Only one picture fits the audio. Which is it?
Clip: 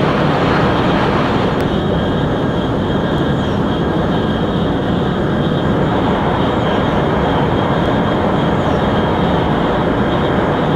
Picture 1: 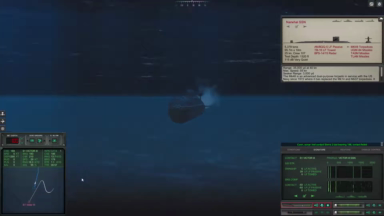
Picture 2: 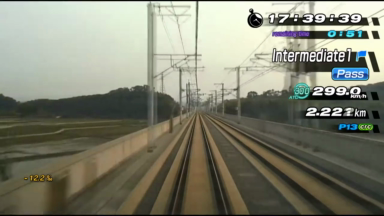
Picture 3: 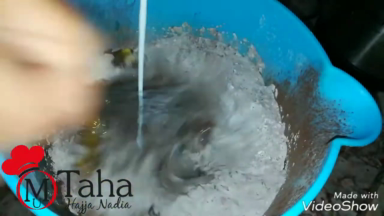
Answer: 2